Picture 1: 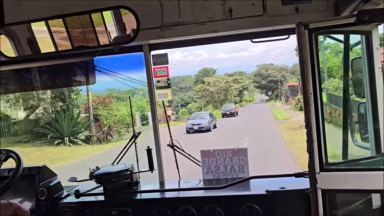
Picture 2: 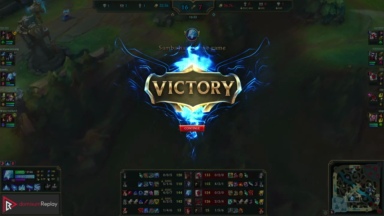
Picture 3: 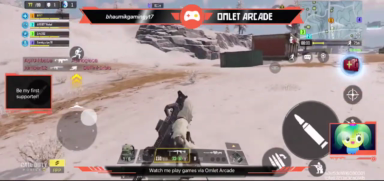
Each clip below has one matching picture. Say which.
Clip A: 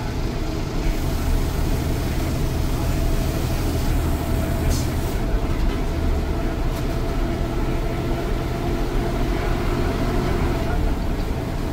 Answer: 1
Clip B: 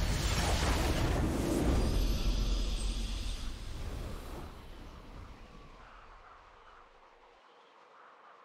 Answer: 2